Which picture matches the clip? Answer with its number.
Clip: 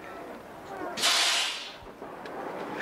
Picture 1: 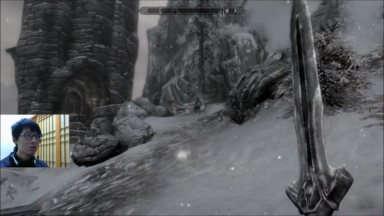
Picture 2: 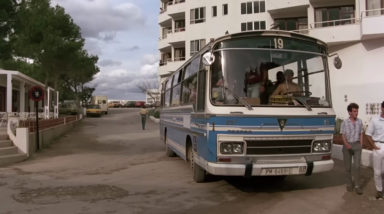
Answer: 2